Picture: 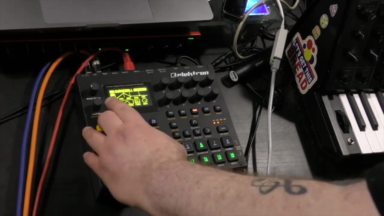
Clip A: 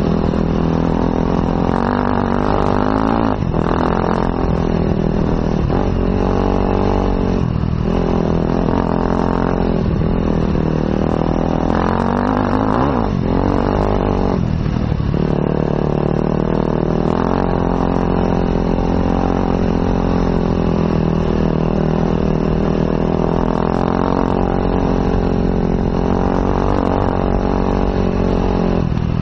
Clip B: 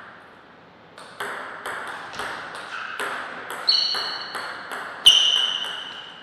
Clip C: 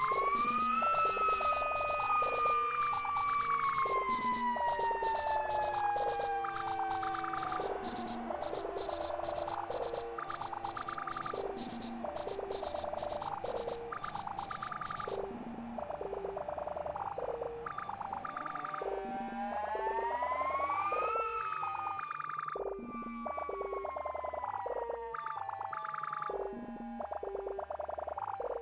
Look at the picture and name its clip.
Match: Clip C